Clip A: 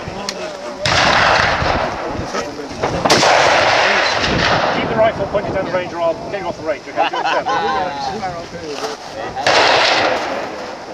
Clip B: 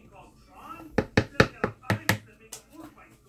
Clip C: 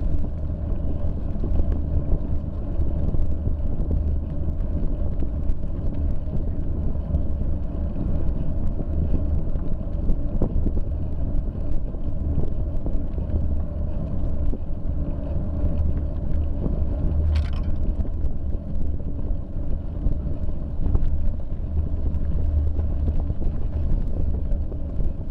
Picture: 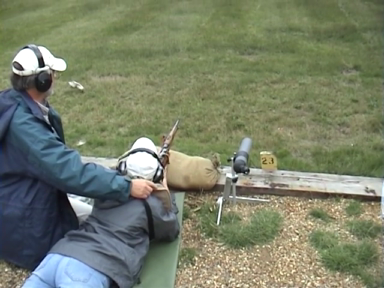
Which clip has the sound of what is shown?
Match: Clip A